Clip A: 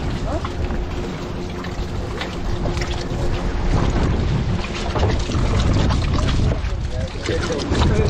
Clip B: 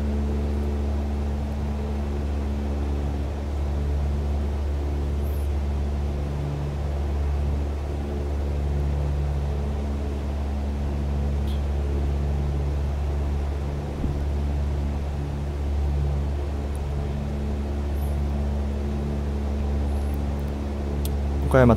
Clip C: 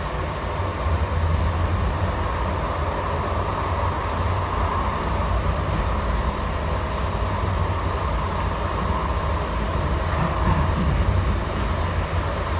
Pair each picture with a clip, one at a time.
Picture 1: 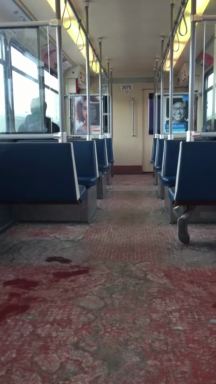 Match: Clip C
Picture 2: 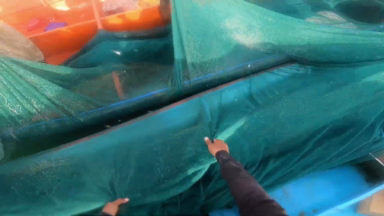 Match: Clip A